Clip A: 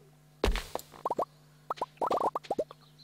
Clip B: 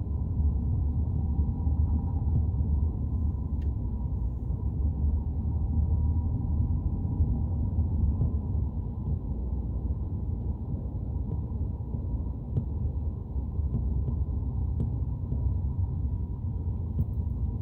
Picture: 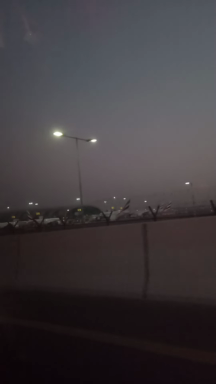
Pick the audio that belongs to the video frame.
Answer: B